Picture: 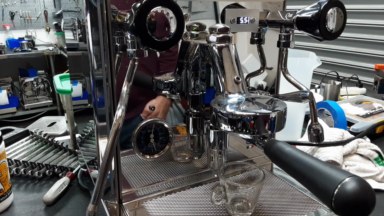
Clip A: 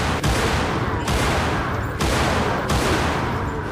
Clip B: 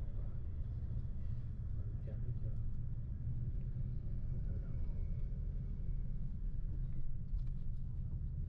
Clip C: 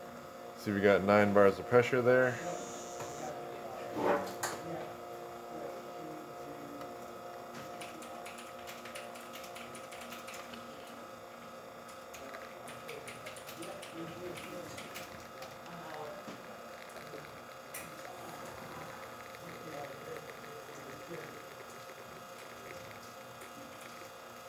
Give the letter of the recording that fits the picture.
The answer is C